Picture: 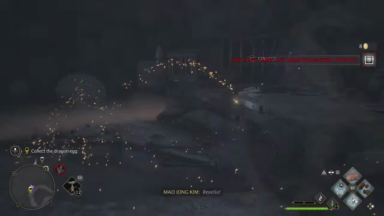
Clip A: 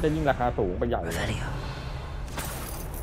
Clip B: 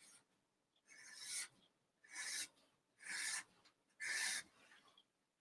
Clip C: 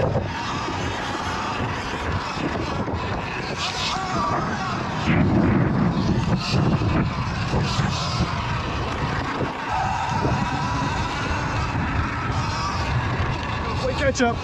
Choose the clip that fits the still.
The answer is A